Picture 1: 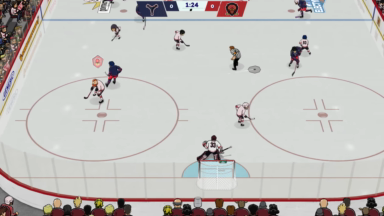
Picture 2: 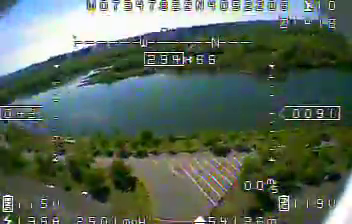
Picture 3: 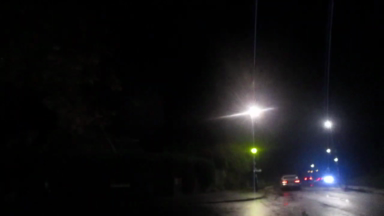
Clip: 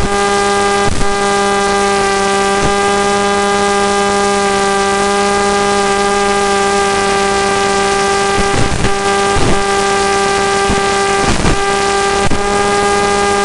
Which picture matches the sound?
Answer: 2